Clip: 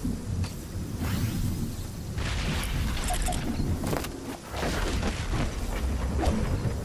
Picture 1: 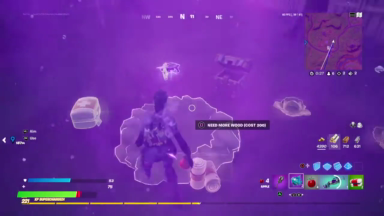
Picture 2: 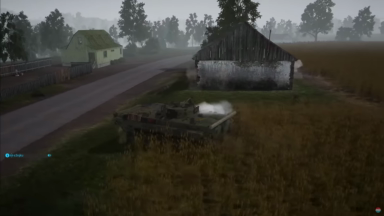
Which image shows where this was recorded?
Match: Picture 1